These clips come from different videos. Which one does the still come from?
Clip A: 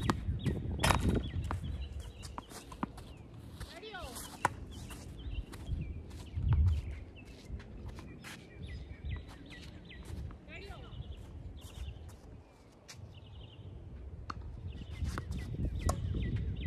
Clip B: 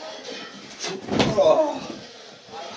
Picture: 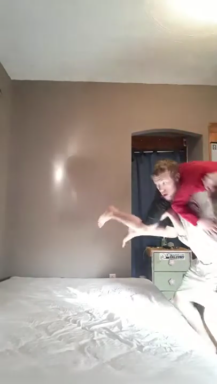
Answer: B